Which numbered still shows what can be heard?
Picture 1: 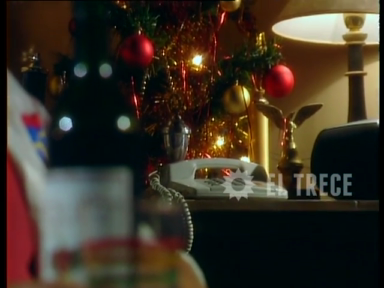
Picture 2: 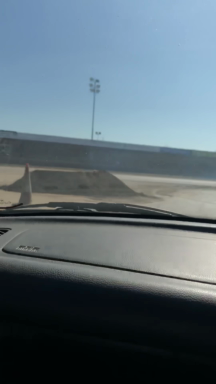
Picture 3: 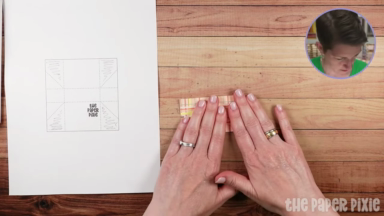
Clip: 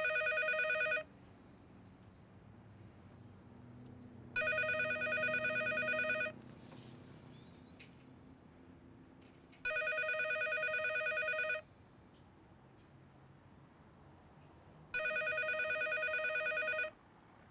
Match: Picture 1